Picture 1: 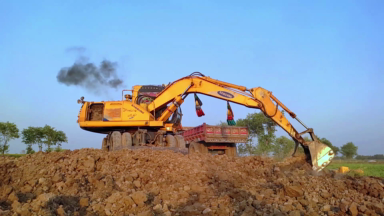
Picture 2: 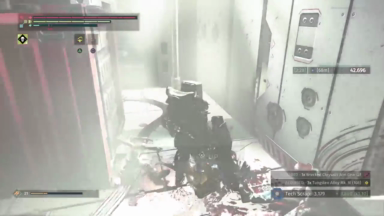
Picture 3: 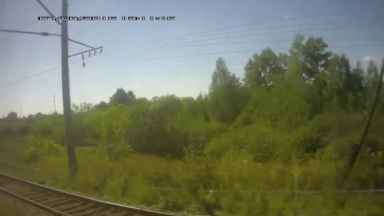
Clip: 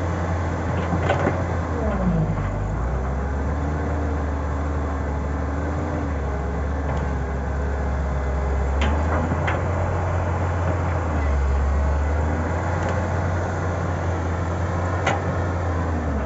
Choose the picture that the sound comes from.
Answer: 1